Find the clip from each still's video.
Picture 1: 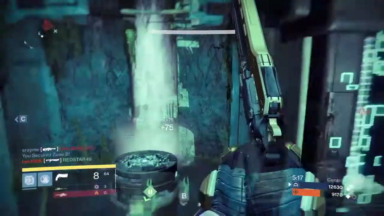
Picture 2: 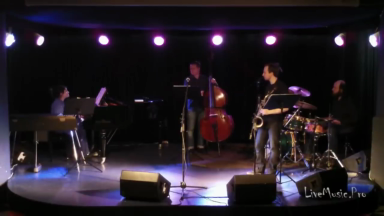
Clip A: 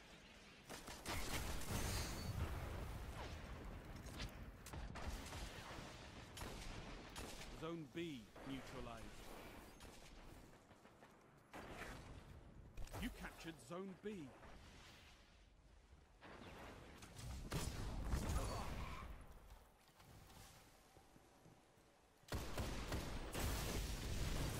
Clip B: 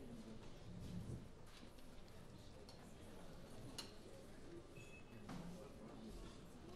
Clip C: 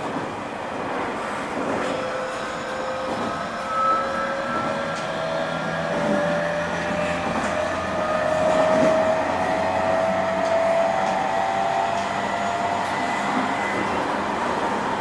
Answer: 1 A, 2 B